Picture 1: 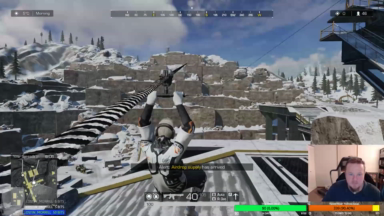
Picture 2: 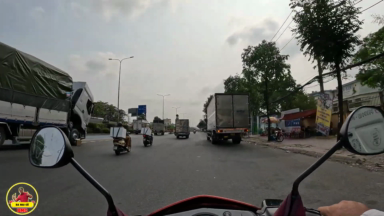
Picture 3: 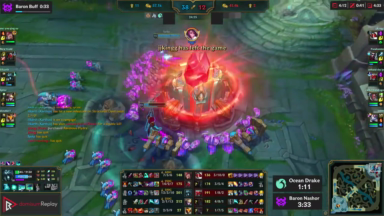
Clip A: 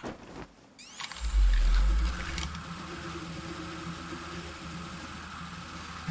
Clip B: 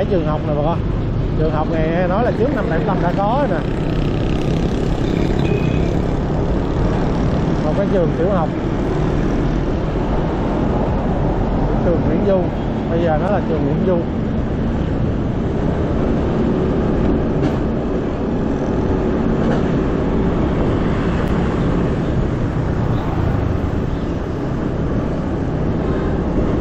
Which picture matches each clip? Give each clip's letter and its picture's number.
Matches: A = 1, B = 2